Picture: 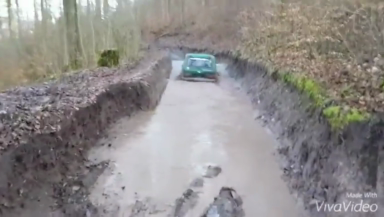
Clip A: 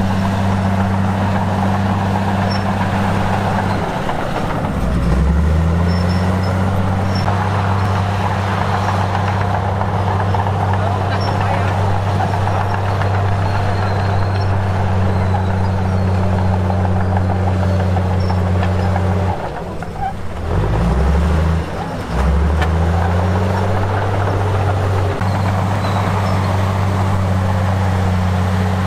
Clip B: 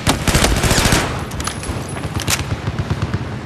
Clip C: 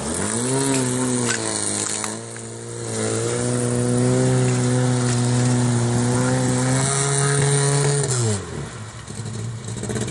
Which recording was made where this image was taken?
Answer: C